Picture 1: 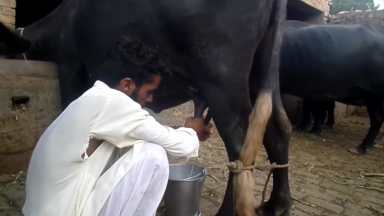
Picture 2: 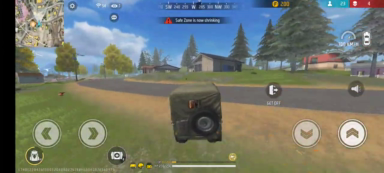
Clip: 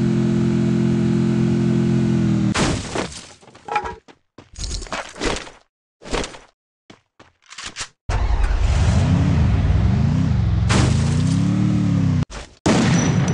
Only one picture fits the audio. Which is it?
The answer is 2